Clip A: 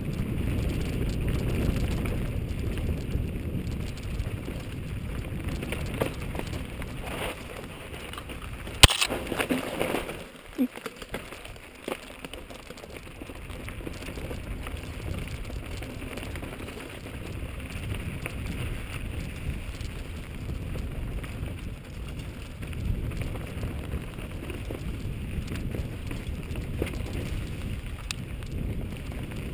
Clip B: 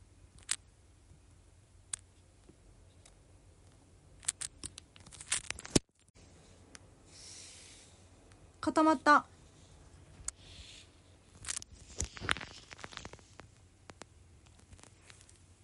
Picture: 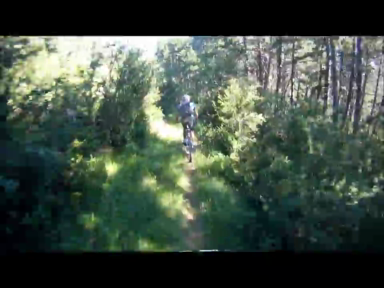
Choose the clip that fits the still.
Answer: A